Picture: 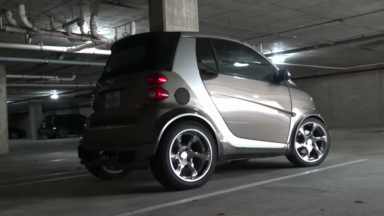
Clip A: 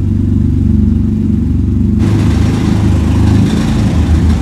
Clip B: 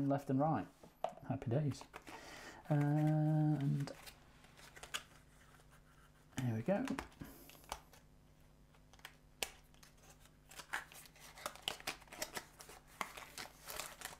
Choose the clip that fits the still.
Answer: A